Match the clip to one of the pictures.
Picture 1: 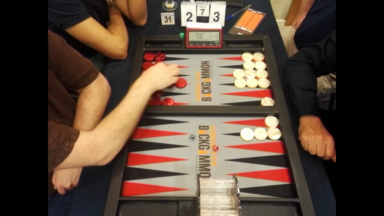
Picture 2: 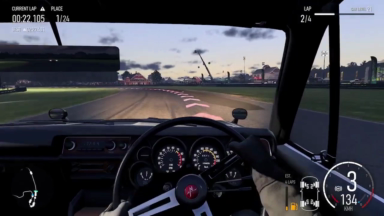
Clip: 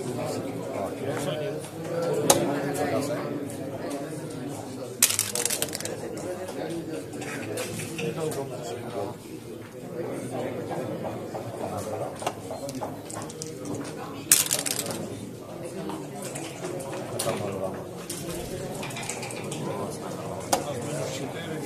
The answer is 1